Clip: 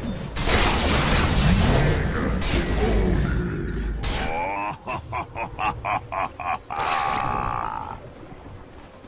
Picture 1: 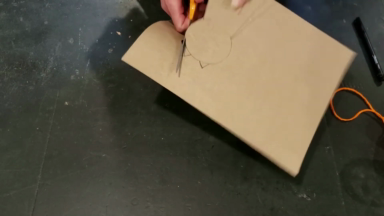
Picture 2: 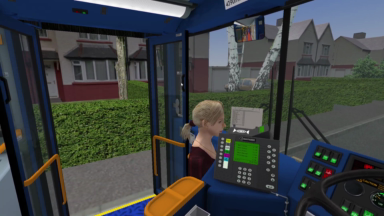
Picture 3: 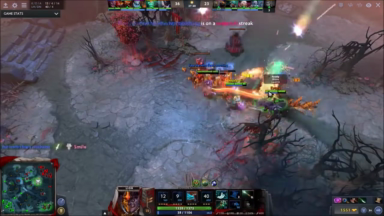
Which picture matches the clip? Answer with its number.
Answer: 3